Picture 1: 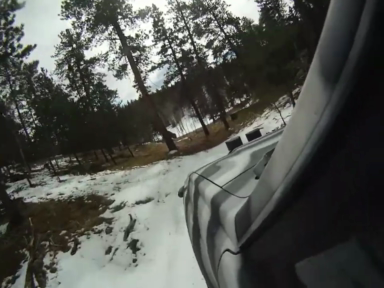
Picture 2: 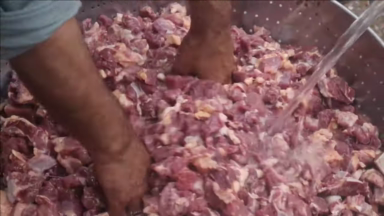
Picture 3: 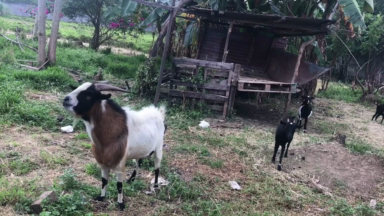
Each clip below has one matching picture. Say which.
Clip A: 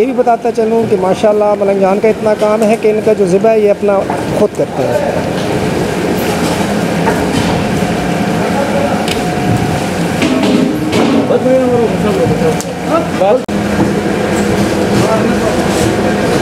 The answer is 2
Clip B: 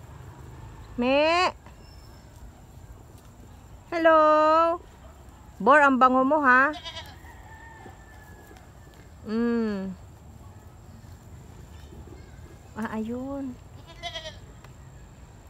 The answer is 3